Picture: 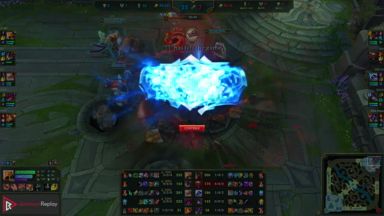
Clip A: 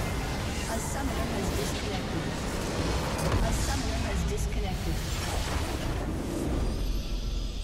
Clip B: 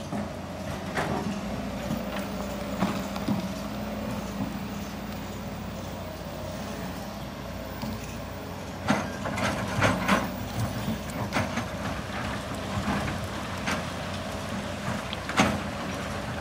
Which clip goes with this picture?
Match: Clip A